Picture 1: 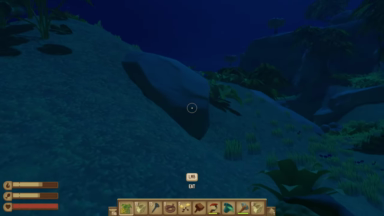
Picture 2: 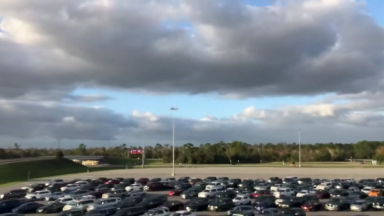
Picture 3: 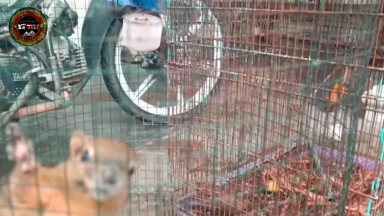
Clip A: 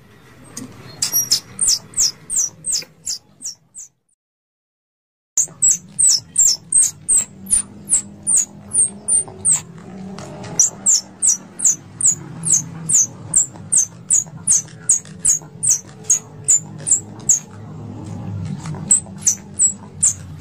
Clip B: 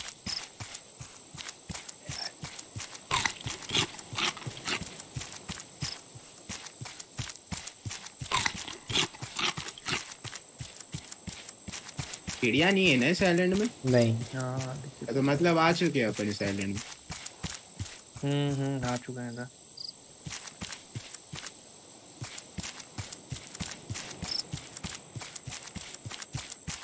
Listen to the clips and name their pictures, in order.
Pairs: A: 3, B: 1